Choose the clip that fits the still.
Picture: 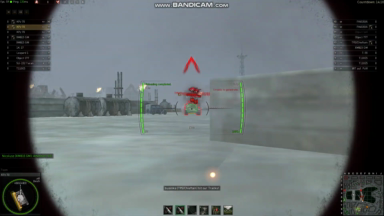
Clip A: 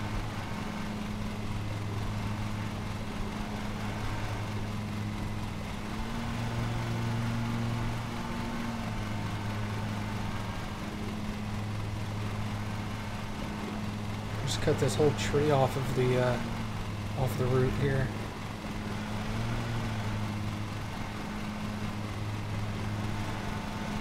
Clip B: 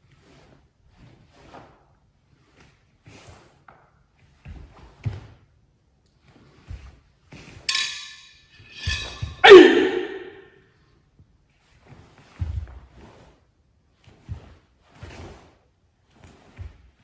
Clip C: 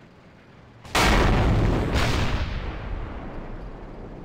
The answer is C